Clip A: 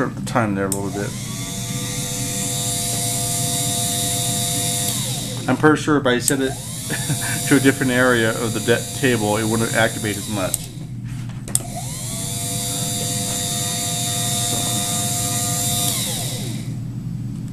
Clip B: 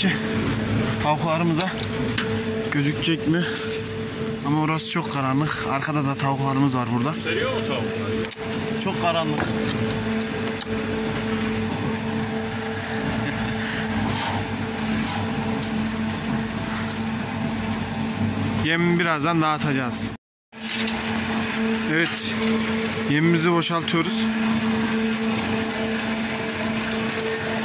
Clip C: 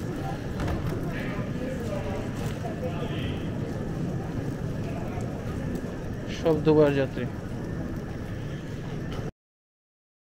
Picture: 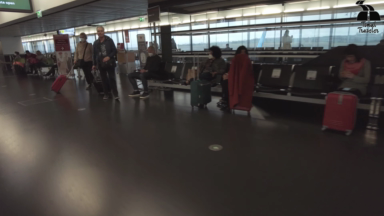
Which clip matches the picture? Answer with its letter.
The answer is C